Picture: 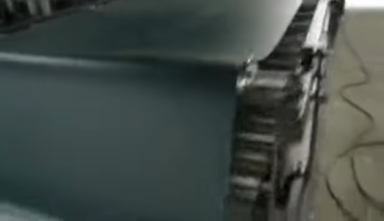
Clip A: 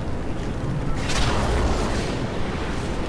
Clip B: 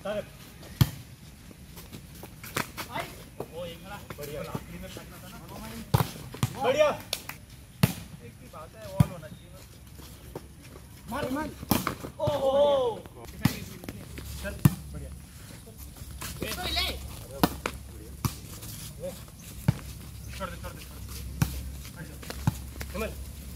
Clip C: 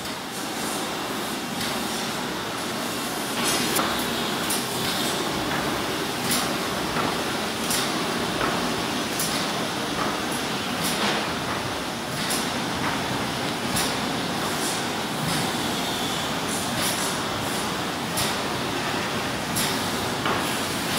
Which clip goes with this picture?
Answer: C